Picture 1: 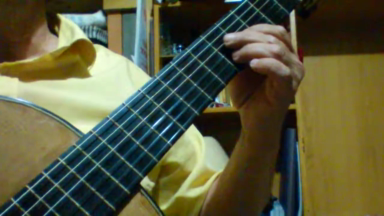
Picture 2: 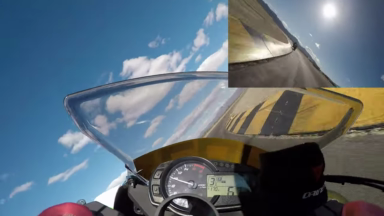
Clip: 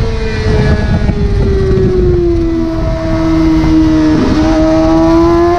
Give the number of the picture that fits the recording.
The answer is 2